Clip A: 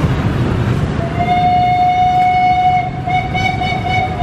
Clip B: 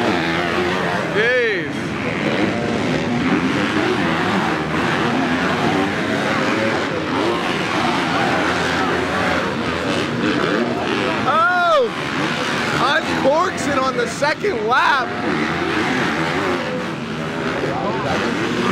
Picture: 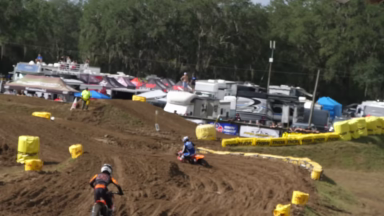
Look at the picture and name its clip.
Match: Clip B